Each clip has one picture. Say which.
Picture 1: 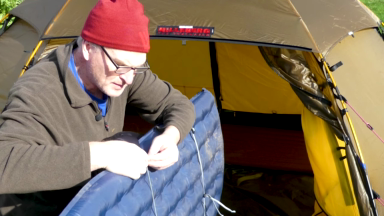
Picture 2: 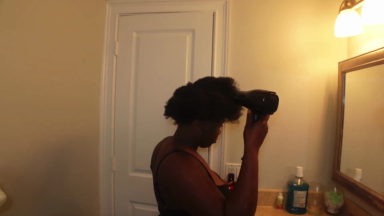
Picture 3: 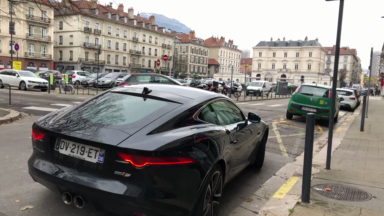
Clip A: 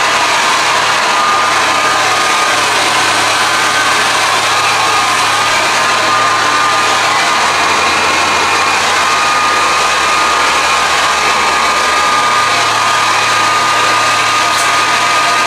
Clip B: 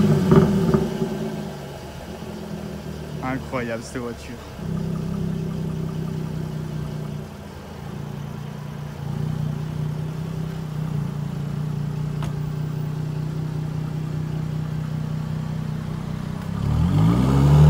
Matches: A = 2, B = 3